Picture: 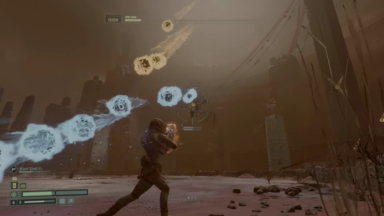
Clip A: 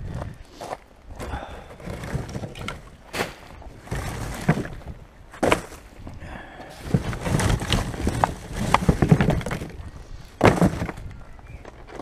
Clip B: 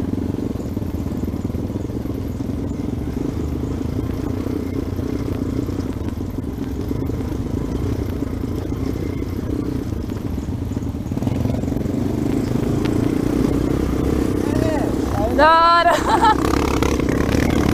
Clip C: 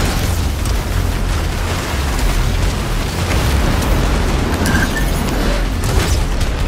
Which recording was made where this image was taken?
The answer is C